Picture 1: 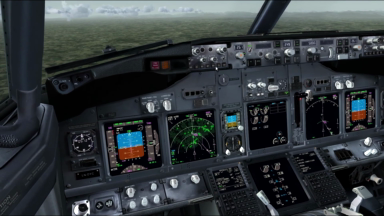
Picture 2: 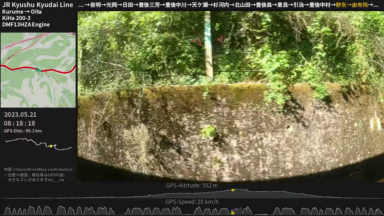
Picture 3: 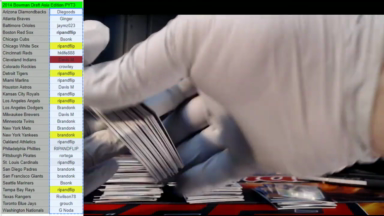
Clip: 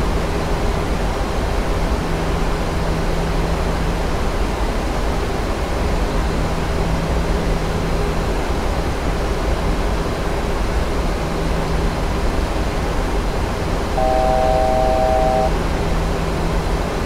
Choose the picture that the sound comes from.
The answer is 1